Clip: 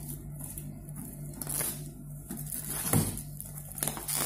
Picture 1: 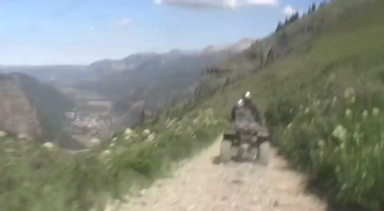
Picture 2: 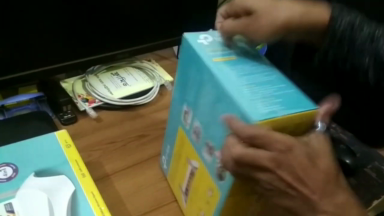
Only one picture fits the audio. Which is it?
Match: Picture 2